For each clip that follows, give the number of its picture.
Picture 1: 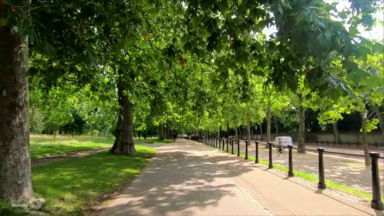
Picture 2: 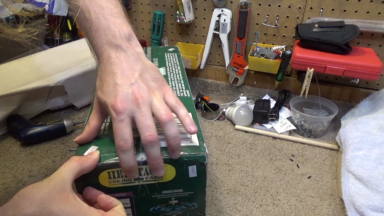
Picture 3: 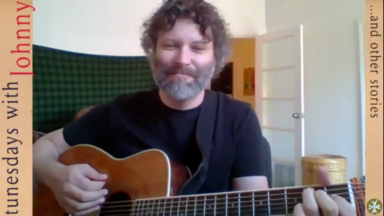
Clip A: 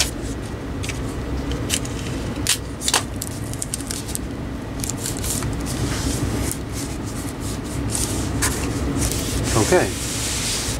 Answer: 2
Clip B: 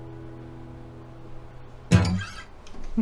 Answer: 3